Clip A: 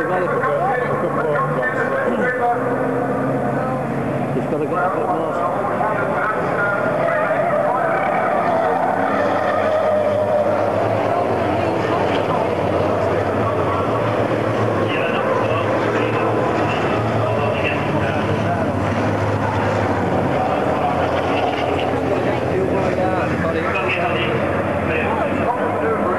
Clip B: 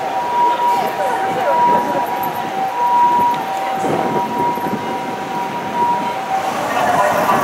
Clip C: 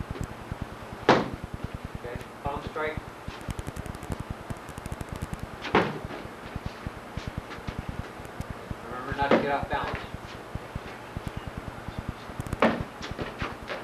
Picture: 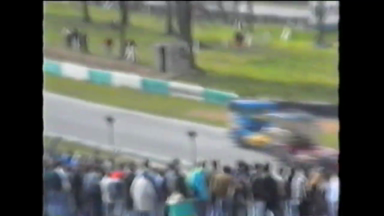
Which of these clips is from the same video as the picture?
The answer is A